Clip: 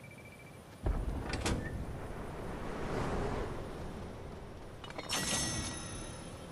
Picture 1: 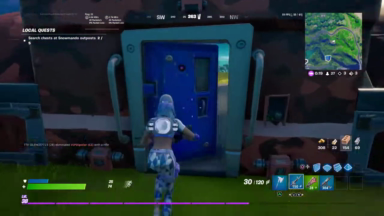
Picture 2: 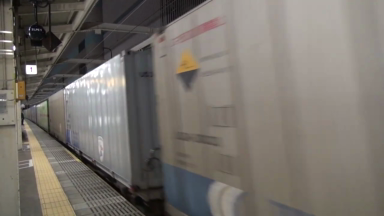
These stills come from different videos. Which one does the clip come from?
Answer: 1